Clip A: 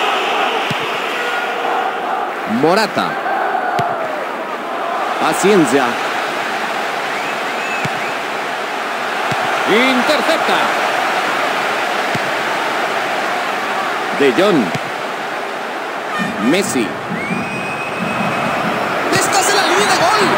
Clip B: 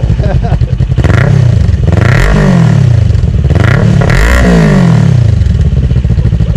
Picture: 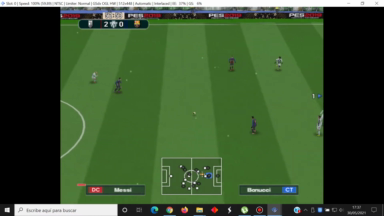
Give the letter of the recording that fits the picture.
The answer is A